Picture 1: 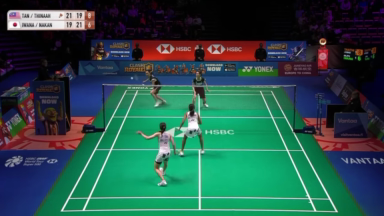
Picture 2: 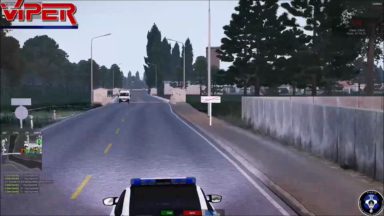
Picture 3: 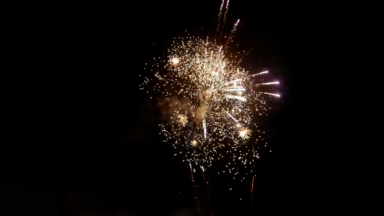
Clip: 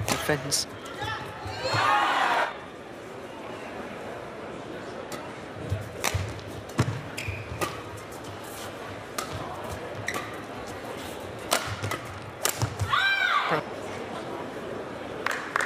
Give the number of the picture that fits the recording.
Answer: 1